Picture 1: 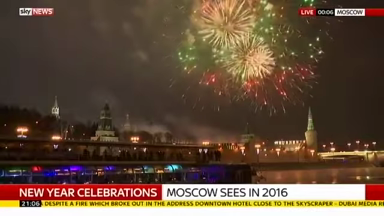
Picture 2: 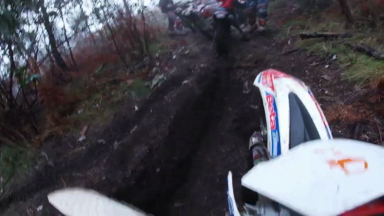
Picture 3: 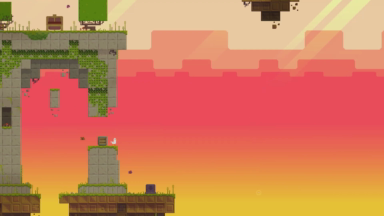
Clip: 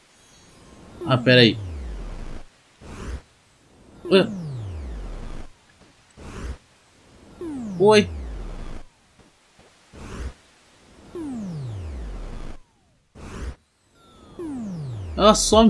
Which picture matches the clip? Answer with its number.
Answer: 3